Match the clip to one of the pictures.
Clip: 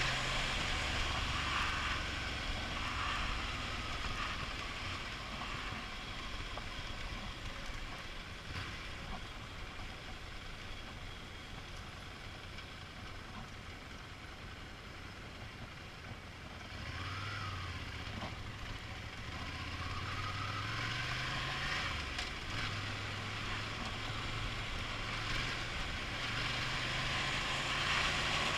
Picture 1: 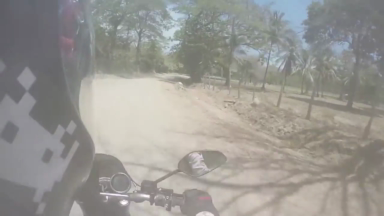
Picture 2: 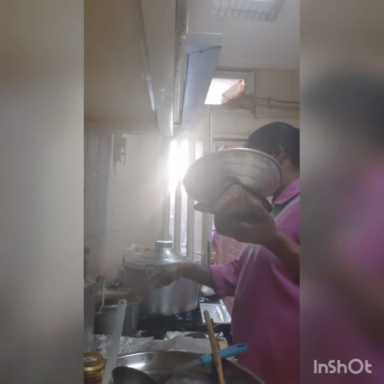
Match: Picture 1